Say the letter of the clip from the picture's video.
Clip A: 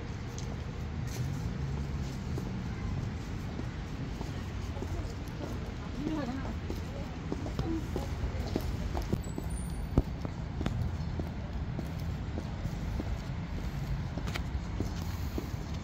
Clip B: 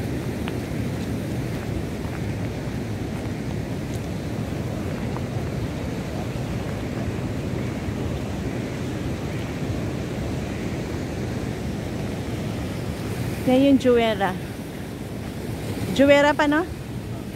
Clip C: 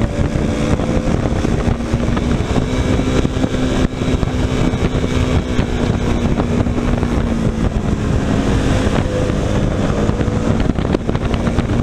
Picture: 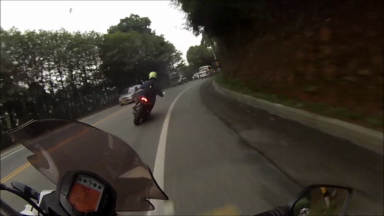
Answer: C